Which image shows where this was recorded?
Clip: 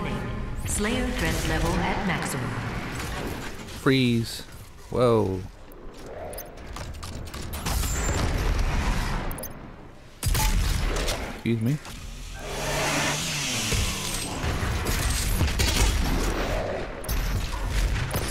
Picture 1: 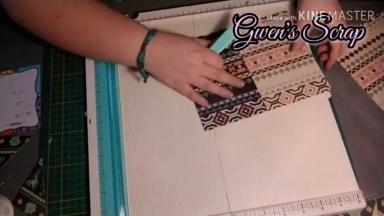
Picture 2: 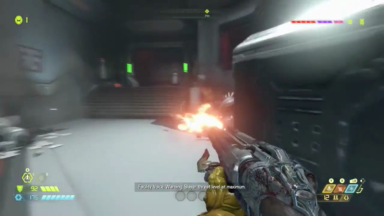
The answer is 2